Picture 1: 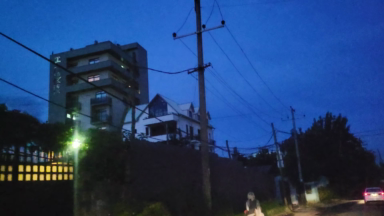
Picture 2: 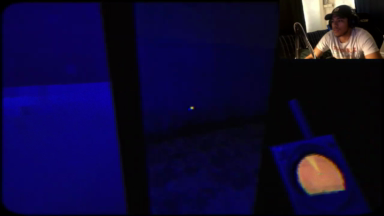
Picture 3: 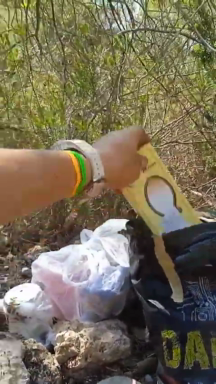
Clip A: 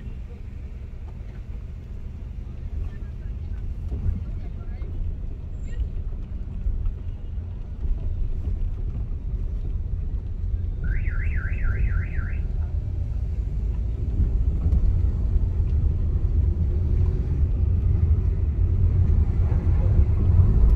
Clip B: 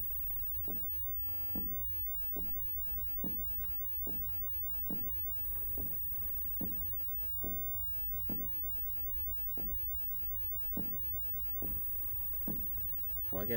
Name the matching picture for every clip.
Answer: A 1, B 2